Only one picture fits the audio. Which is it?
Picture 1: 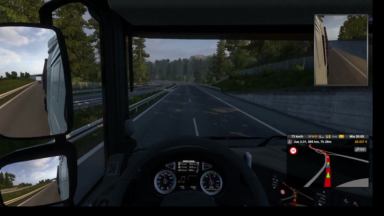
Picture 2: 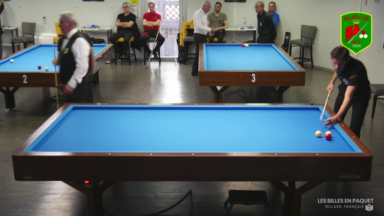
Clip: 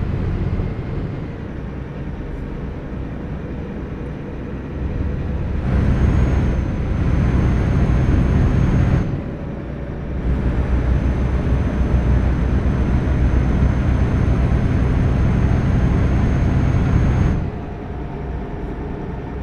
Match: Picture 1